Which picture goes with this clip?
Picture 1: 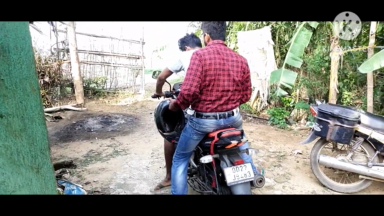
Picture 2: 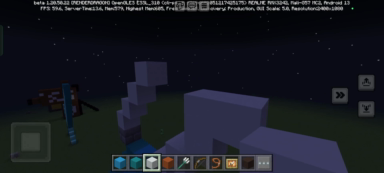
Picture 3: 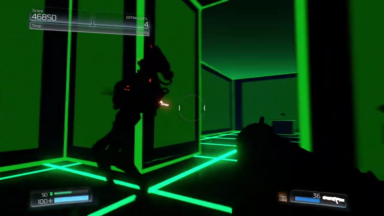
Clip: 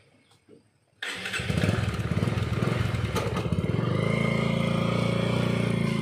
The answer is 1